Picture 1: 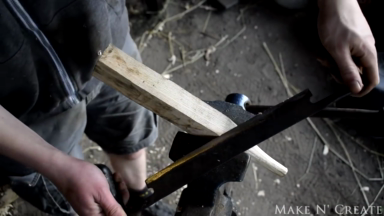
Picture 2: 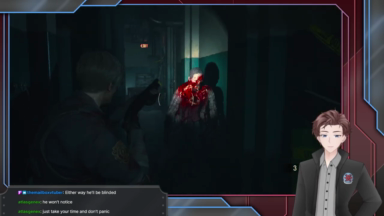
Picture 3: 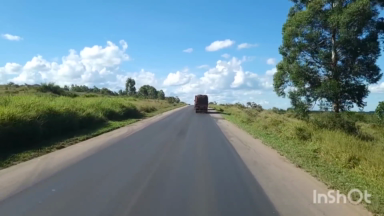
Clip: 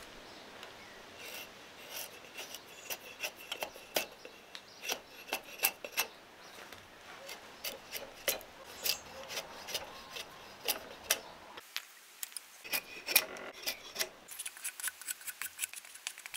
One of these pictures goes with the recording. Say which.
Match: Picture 1